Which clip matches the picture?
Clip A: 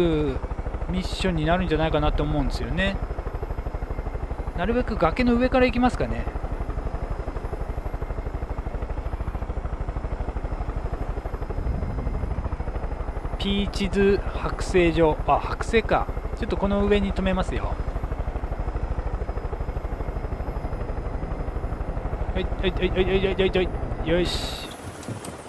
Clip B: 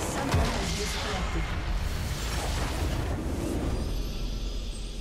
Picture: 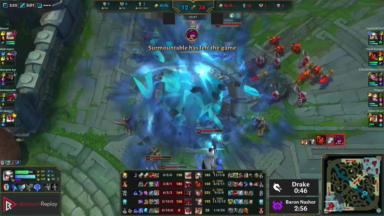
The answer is B